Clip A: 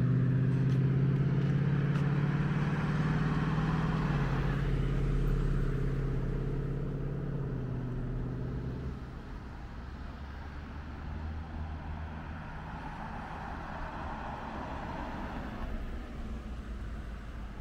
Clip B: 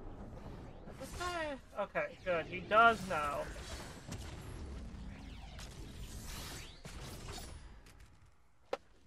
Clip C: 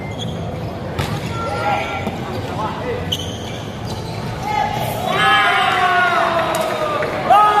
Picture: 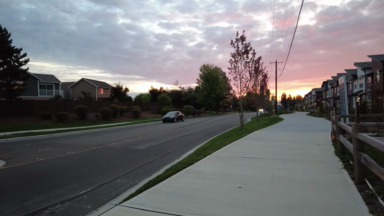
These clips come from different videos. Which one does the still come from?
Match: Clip A